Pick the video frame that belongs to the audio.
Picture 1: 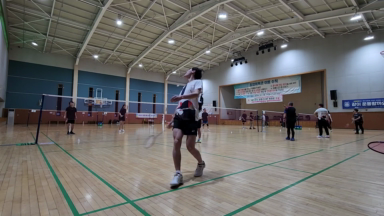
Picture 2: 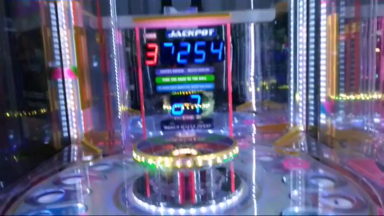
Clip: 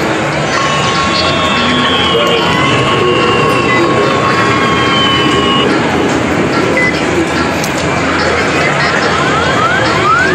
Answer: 2